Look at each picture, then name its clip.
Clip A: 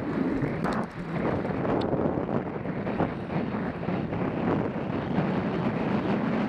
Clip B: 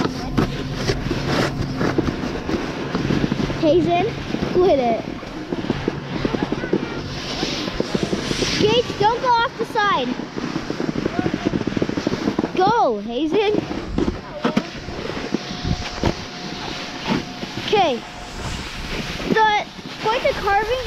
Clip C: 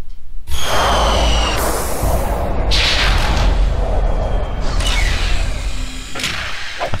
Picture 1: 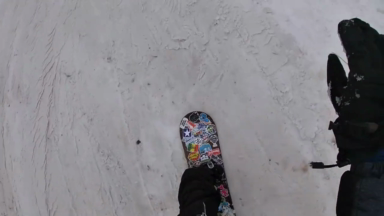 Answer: B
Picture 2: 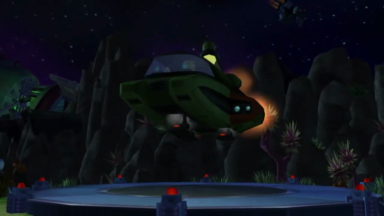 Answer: C